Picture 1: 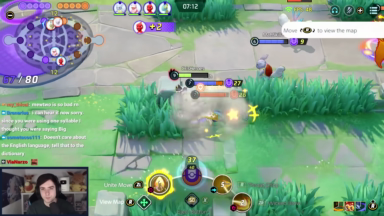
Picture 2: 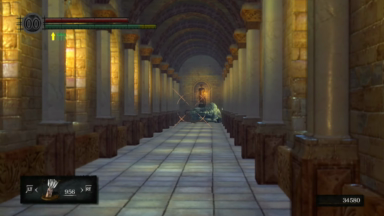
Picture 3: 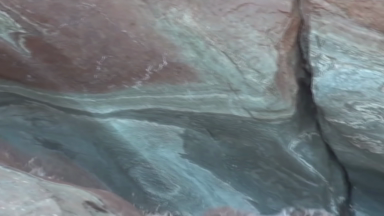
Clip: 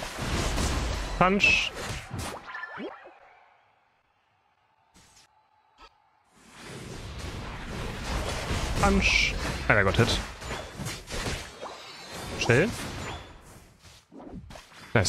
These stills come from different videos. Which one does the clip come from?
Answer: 1